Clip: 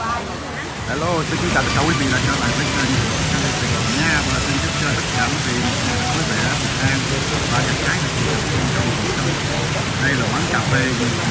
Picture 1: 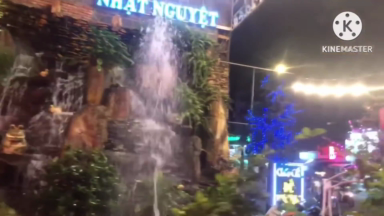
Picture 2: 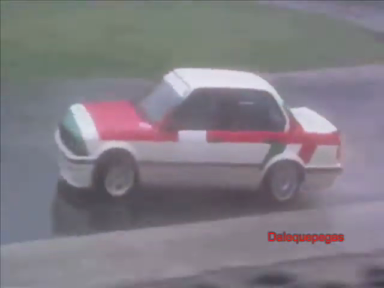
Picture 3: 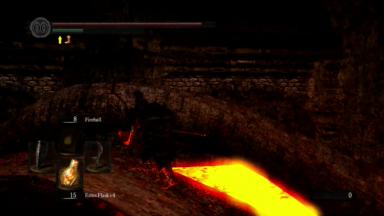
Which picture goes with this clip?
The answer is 1